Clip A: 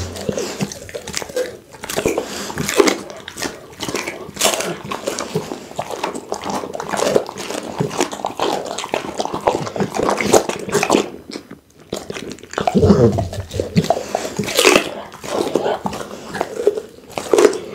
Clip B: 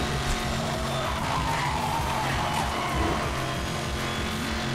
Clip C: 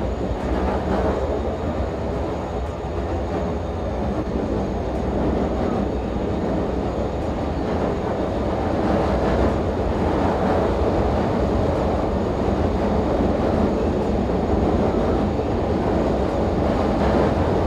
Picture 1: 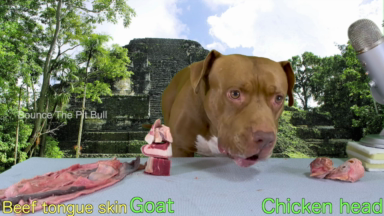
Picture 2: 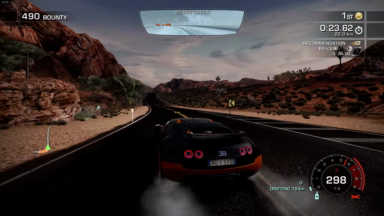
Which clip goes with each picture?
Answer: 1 A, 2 B